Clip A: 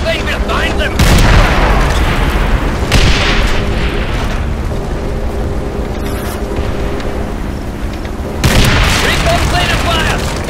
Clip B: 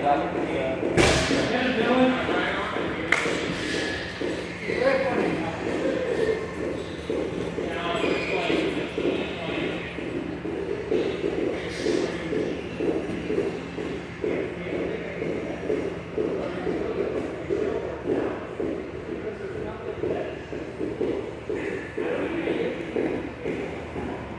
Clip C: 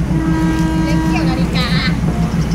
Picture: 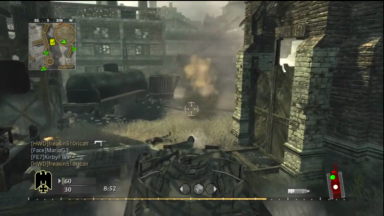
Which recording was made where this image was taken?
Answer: A